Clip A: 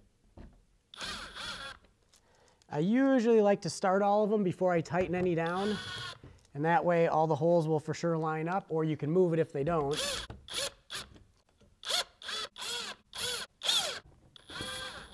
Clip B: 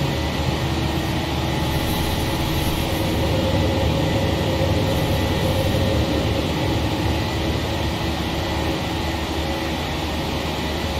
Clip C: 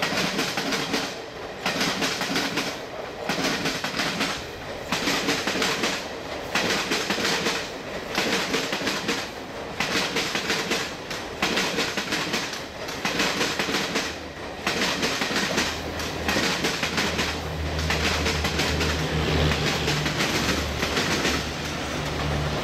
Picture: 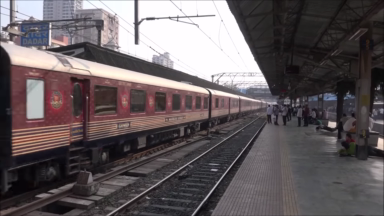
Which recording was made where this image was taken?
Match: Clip C